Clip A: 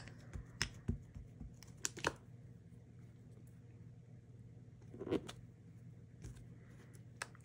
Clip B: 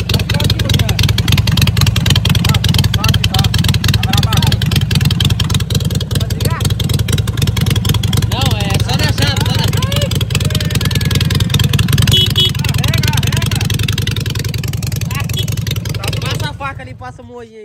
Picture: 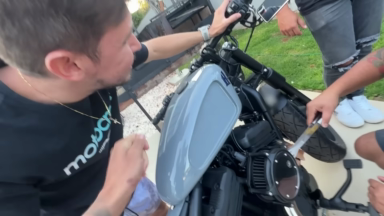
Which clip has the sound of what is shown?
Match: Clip B